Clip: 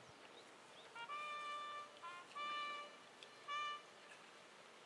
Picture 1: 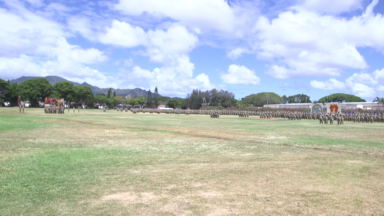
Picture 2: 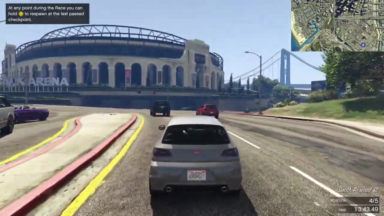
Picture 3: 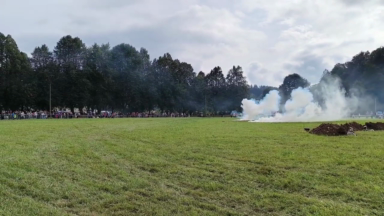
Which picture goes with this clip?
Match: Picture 1